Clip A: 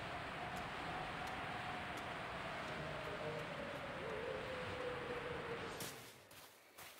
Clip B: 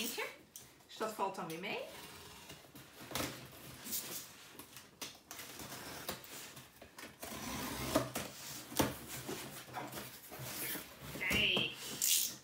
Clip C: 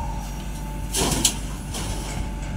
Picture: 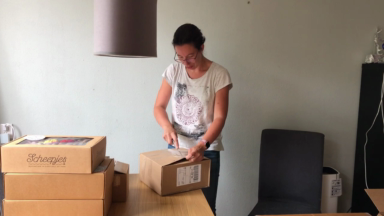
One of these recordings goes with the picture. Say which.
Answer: B